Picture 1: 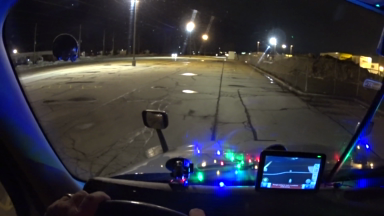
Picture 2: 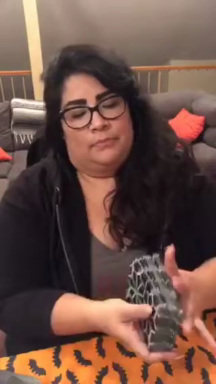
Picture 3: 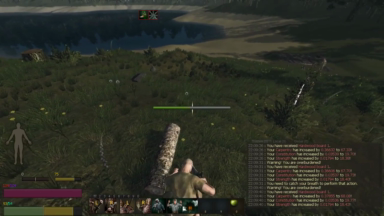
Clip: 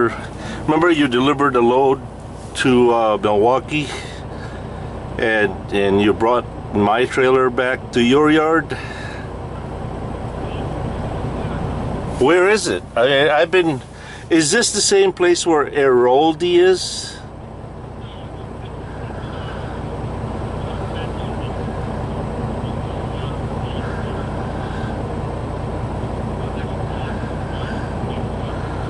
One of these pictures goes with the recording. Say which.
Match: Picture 1